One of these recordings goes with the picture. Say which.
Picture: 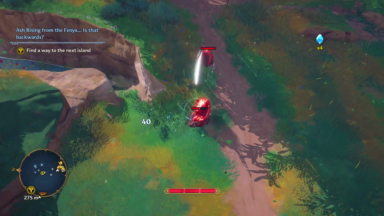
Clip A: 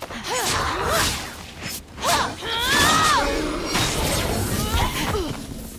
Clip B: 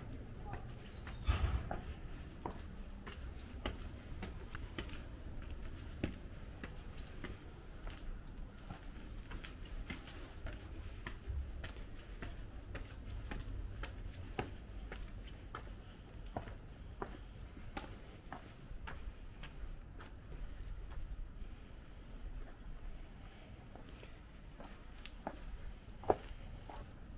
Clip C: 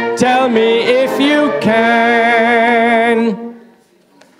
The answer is A